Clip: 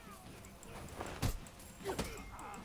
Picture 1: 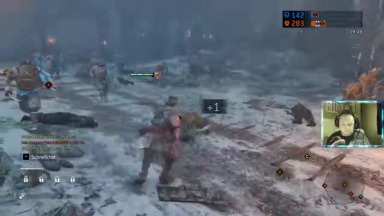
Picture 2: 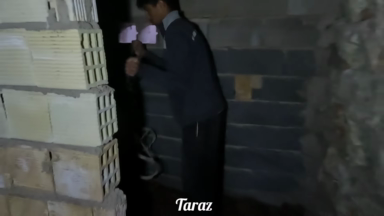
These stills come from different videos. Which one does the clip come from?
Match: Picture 1